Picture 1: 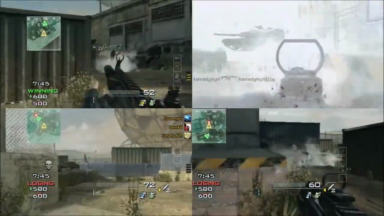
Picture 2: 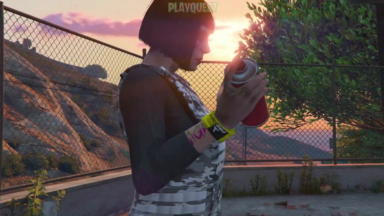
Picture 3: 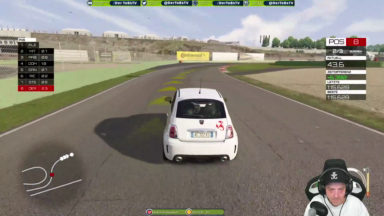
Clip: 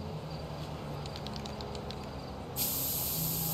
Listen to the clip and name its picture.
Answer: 2